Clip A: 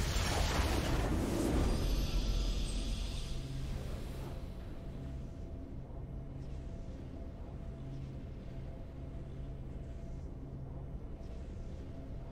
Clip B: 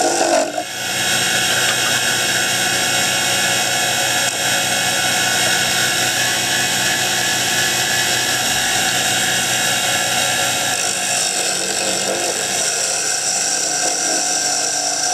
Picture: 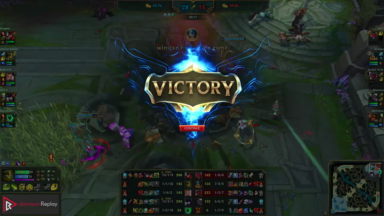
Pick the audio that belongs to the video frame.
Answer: A